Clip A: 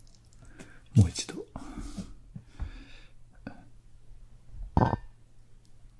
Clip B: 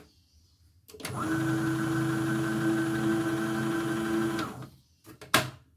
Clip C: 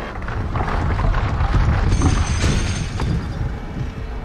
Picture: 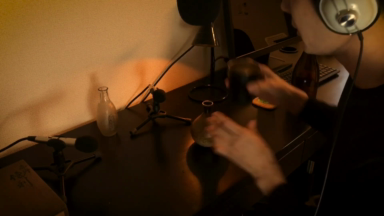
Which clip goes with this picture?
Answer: A